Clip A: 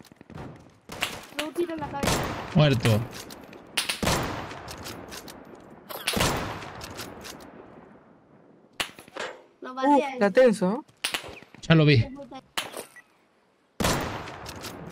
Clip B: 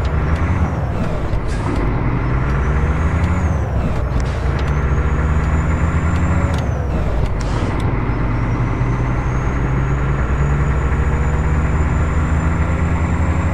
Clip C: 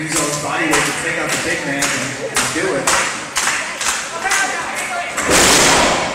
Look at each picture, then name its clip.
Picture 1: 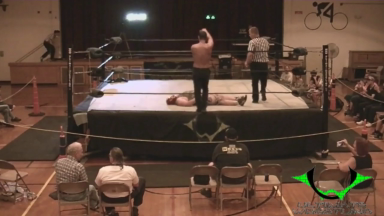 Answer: C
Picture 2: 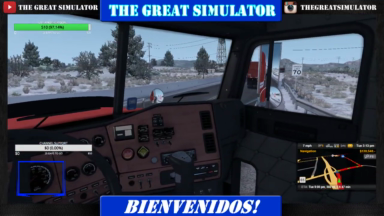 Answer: B